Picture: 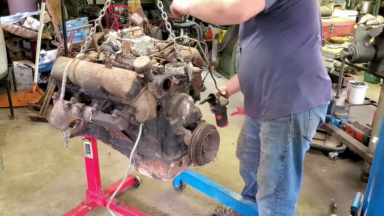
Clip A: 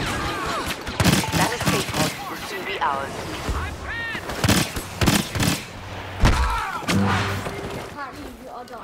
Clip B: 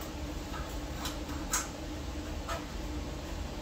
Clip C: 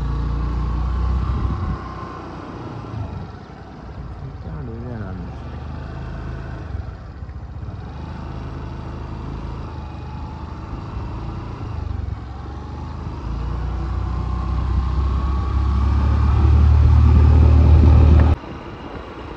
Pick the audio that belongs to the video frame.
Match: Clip B